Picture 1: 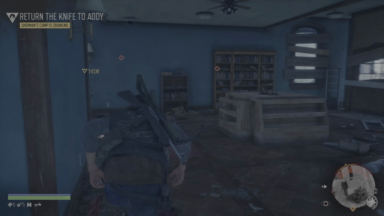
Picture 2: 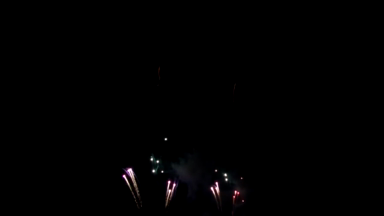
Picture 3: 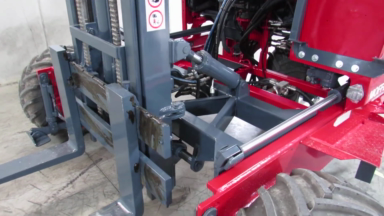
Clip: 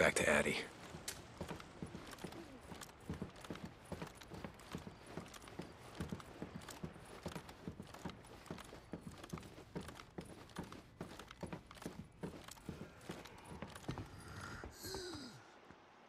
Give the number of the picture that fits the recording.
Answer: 1